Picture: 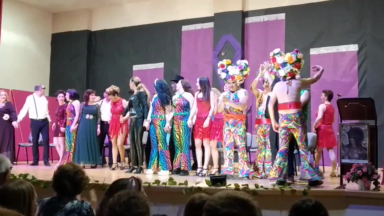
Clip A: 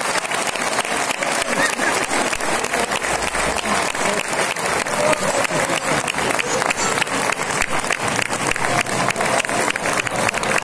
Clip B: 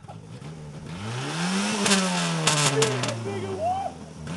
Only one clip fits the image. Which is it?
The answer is A